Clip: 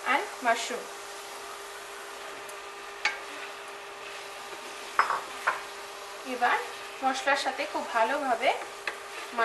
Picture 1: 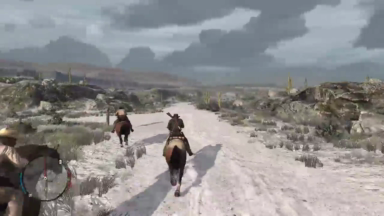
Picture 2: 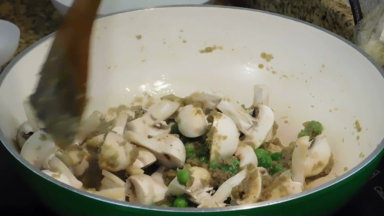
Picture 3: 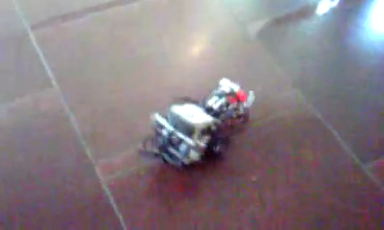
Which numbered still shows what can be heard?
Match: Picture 2